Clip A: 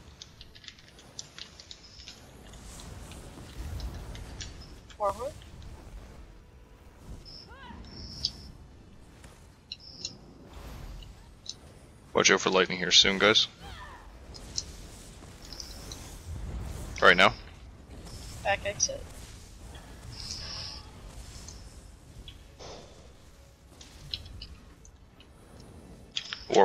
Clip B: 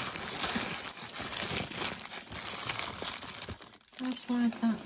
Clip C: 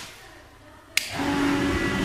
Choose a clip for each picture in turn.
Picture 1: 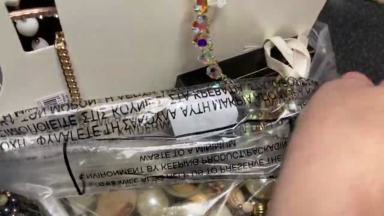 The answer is B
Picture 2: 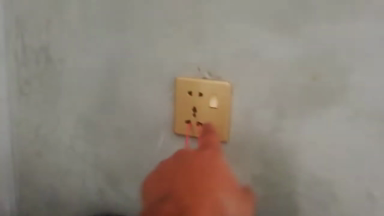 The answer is C